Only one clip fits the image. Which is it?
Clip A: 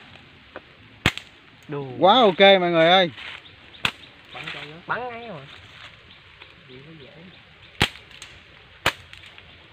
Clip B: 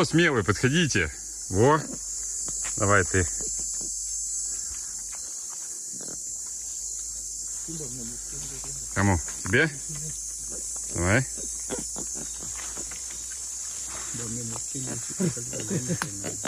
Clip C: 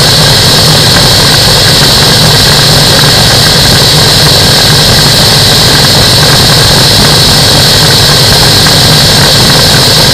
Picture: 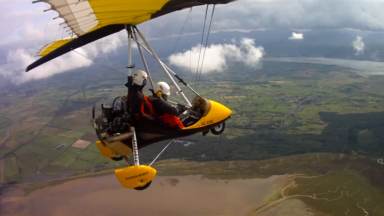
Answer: C